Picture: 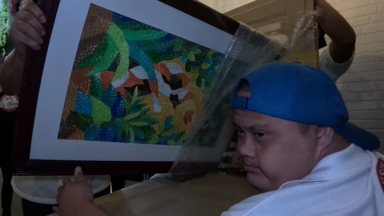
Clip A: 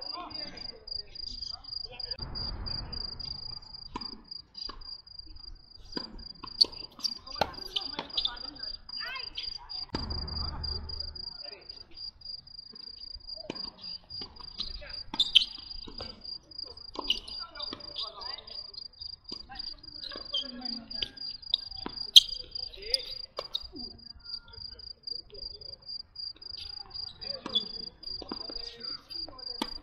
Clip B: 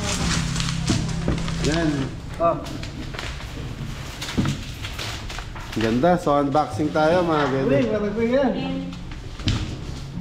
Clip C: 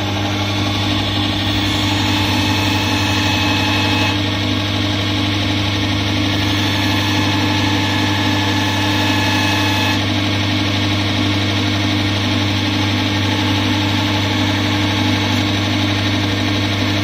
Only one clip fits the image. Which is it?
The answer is B